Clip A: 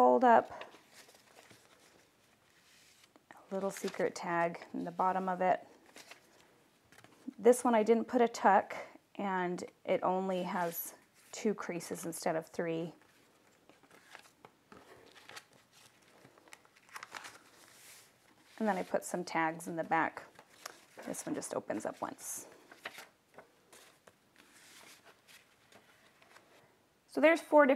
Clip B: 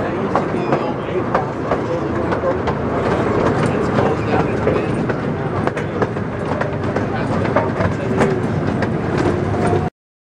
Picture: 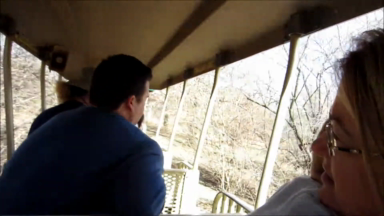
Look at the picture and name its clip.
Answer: B